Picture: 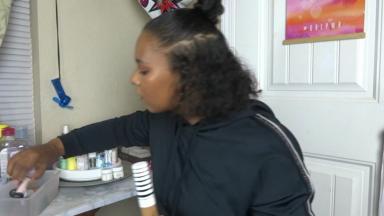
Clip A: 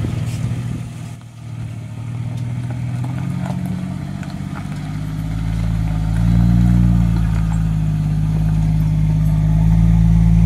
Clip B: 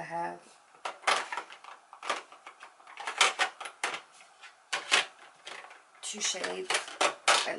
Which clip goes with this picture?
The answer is B